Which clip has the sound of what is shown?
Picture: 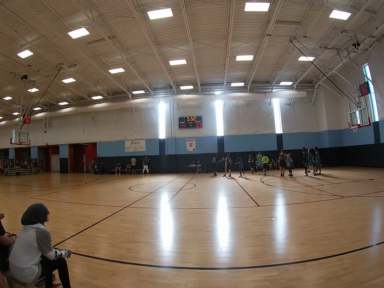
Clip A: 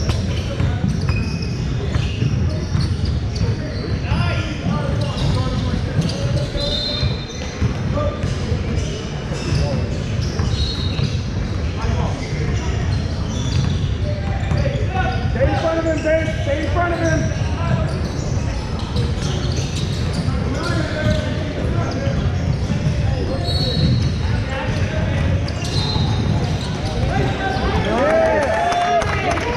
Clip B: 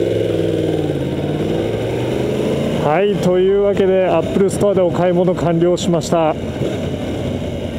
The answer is A